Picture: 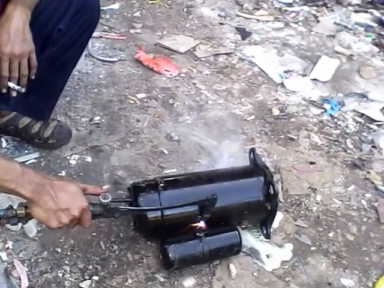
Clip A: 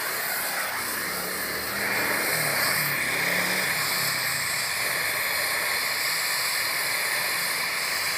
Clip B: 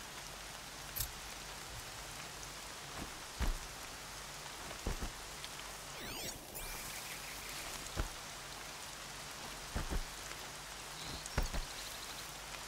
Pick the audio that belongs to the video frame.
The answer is A